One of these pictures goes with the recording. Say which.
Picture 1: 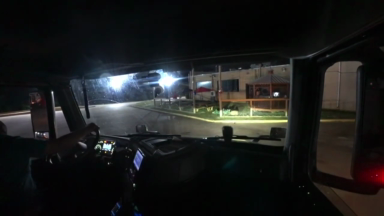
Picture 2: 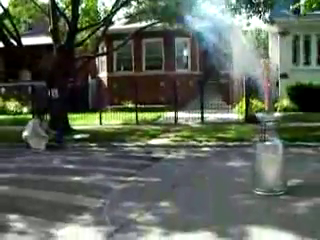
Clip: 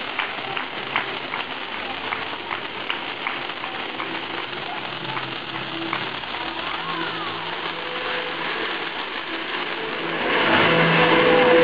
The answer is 2